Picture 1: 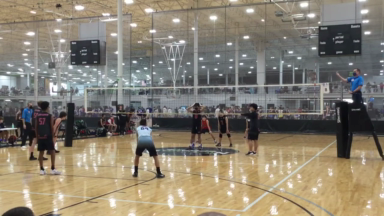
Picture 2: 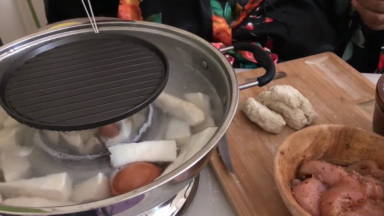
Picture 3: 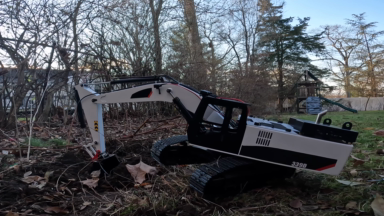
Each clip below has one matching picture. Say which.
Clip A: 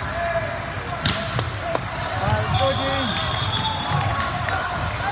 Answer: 1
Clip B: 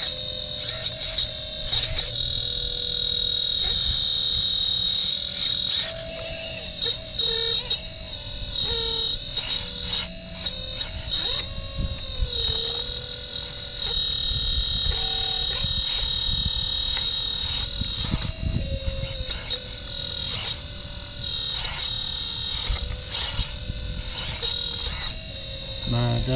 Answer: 3